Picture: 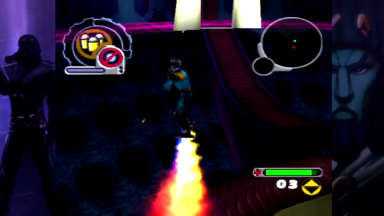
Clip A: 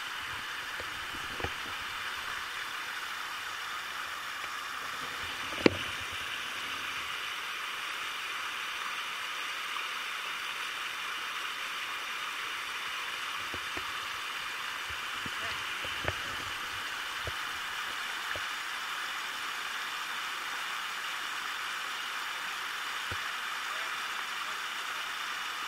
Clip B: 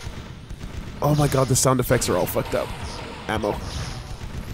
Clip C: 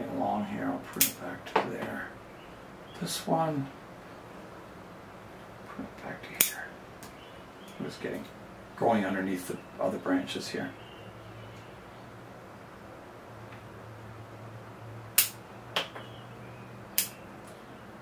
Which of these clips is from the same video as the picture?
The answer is B